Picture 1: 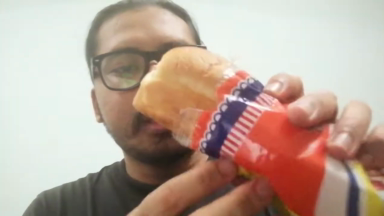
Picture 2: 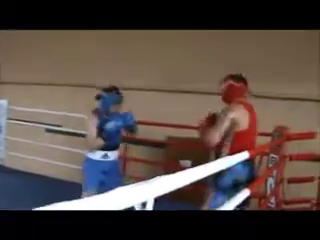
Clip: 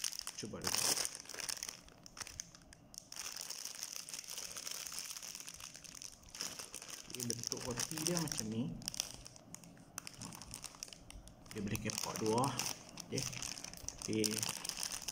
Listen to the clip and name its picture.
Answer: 1